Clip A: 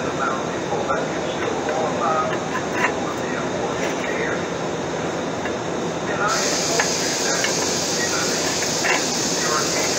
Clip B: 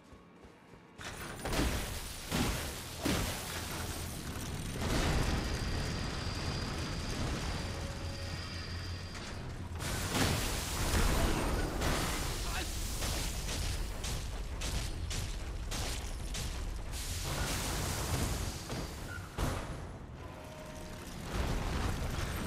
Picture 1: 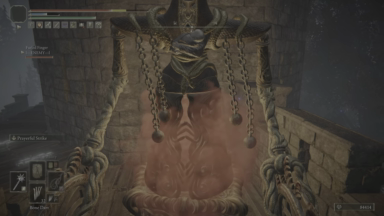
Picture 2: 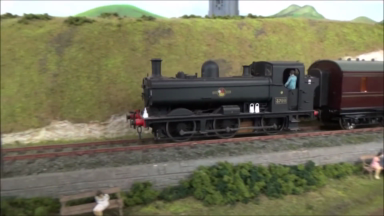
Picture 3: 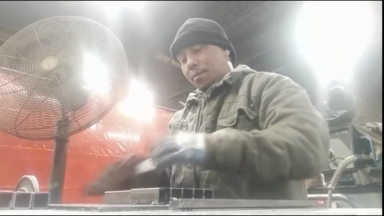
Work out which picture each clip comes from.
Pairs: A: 3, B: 1